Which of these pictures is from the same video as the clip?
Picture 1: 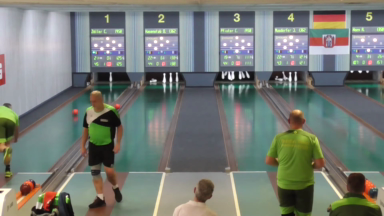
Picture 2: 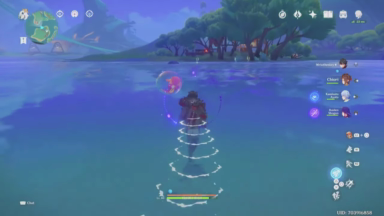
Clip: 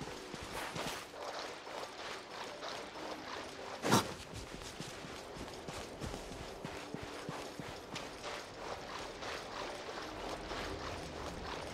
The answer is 2